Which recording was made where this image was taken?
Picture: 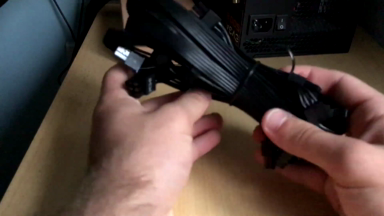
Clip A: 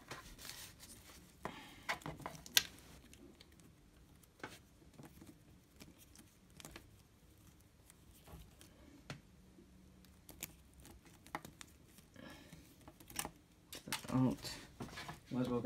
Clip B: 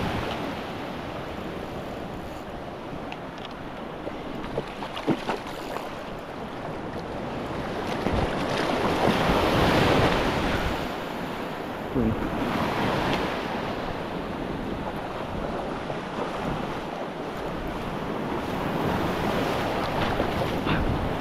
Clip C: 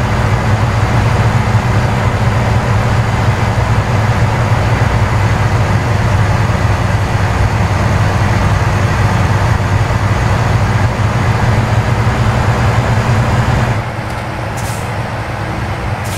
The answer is A